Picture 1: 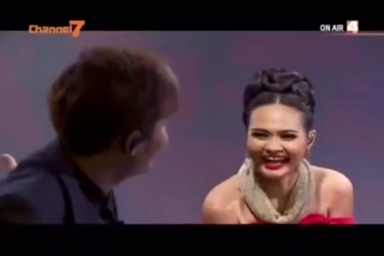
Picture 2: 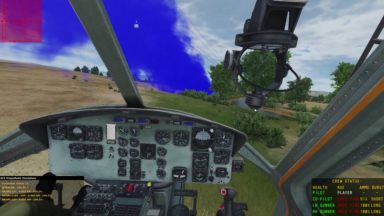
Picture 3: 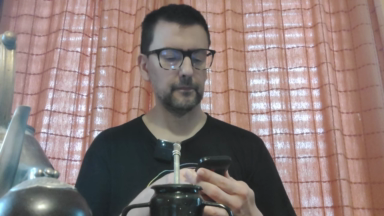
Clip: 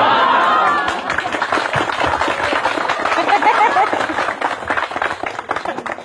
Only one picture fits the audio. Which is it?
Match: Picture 1